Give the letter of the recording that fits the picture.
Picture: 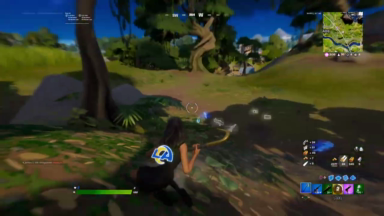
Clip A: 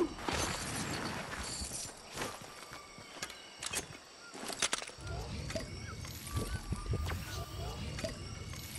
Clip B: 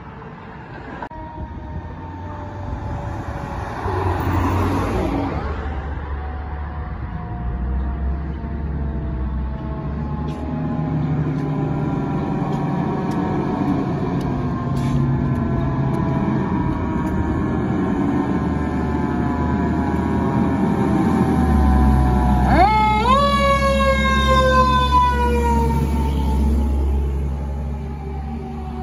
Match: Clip A